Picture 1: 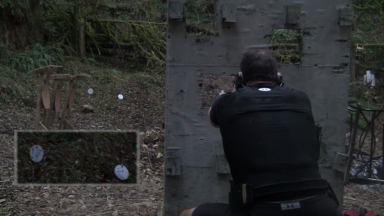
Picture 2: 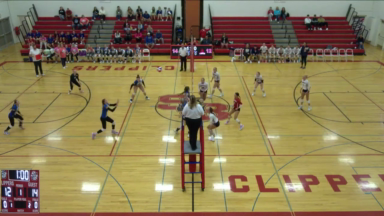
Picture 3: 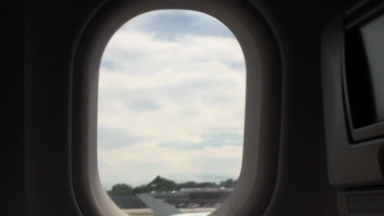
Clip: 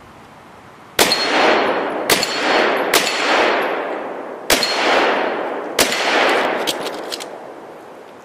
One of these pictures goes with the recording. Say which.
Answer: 1